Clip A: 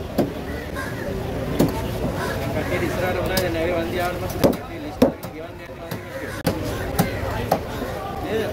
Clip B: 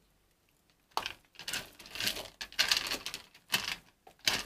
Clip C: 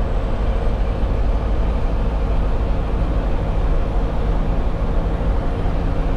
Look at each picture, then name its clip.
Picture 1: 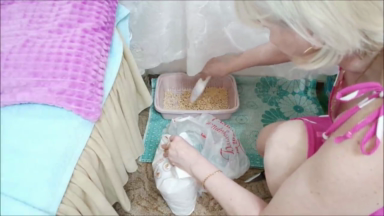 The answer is B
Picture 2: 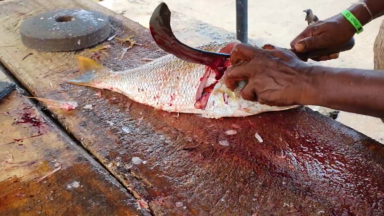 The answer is A